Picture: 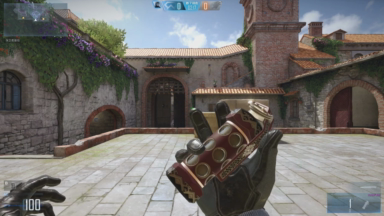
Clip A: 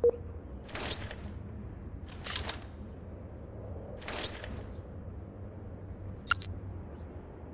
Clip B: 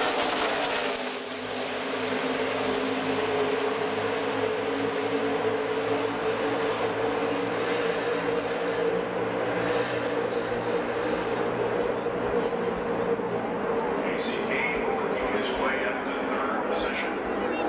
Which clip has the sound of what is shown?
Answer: A